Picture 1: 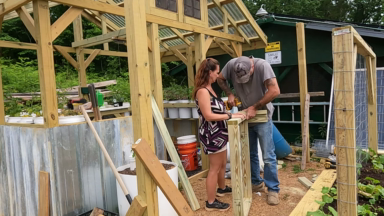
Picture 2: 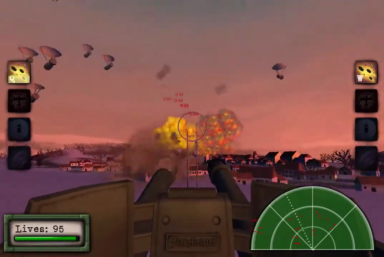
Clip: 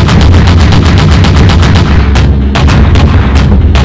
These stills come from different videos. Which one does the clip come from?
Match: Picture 2